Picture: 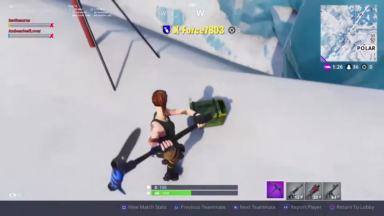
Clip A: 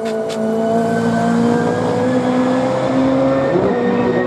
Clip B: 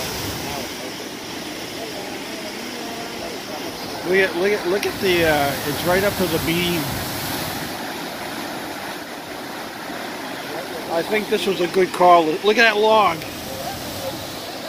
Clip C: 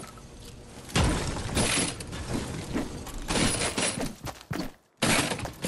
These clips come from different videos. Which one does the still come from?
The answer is C